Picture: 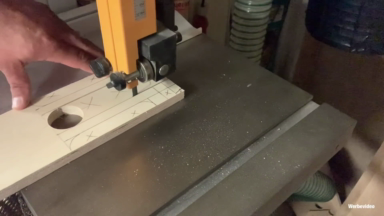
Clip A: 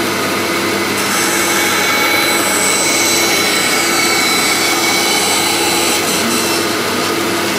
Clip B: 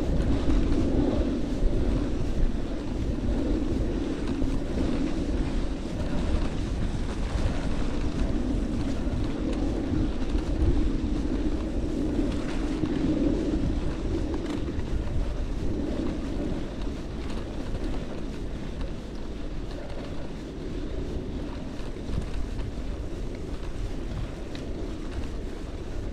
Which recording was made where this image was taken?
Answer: A